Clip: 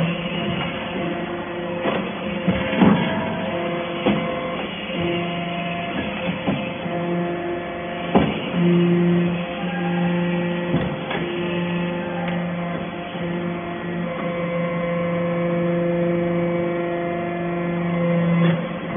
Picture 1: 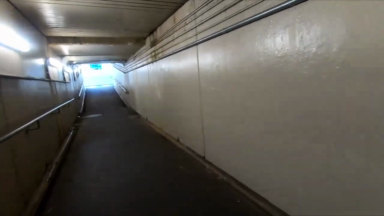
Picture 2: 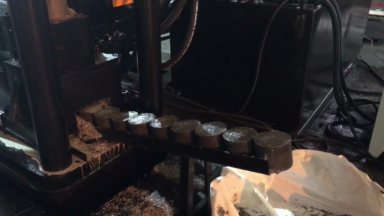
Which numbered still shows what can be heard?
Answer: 2